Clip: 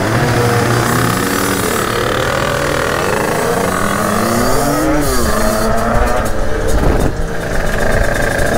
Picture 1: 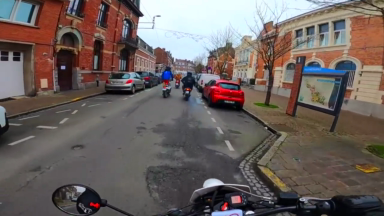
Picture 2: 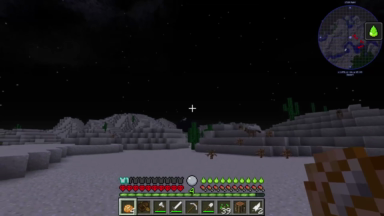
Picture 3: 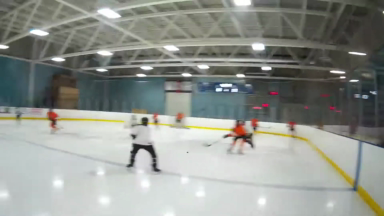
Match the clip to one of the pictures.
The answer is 1